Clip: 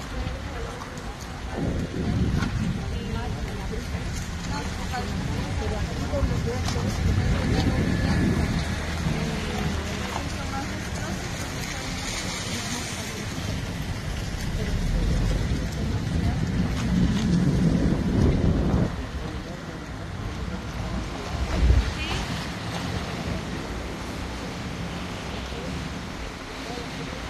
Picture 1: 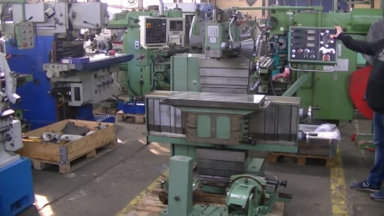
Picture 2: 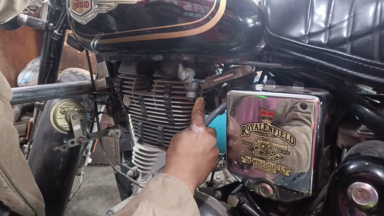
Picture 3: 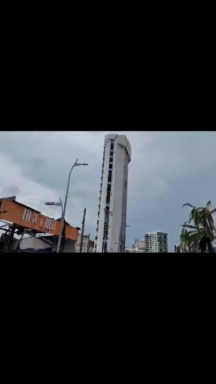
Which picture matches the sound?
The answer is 3